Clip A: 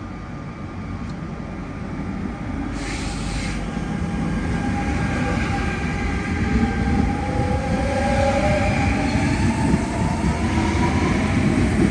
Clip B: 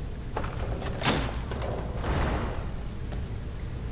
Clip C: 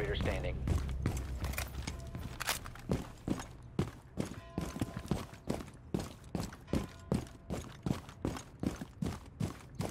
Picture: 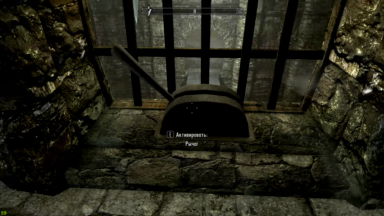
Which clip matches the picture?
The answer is B